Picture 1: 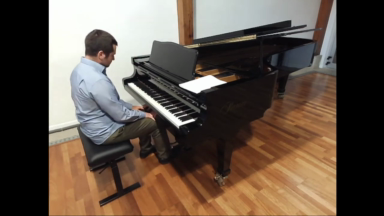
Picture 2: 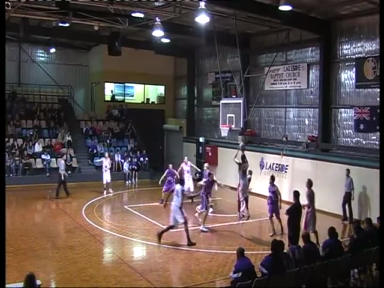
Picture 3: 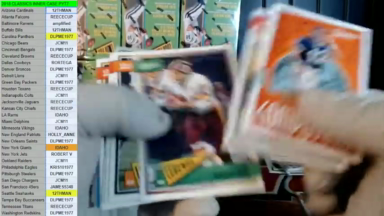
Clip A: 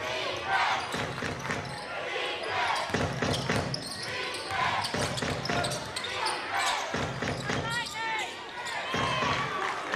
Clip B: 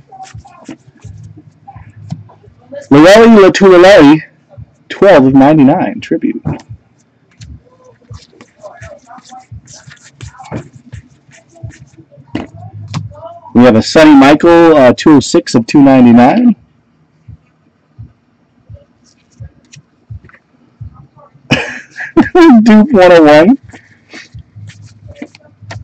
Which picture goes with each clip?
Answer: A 2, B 3